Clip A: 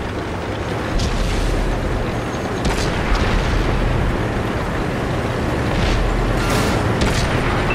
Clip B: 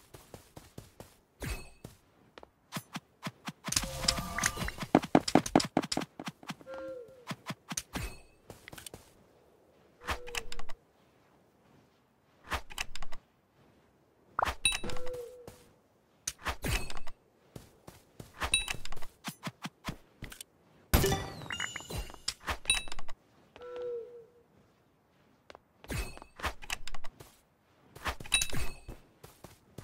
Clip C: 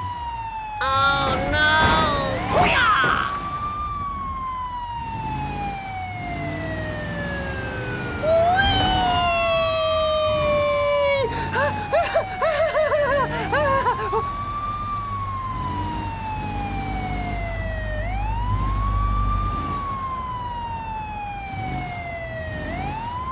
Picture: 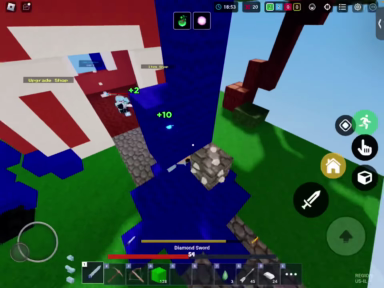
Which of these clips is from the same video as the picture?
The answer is B